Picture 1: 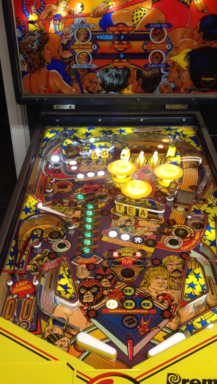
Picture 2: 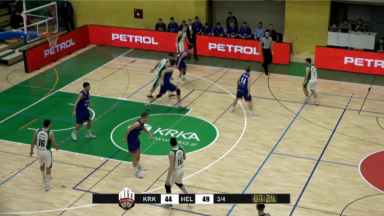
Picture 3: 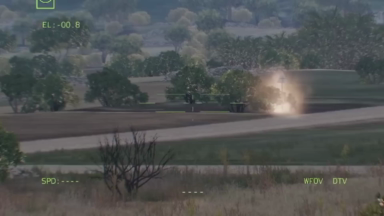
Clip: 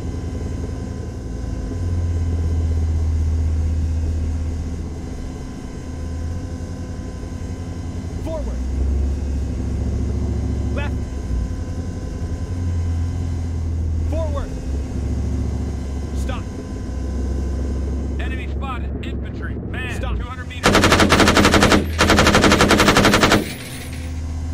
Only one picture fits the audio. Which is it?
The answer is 3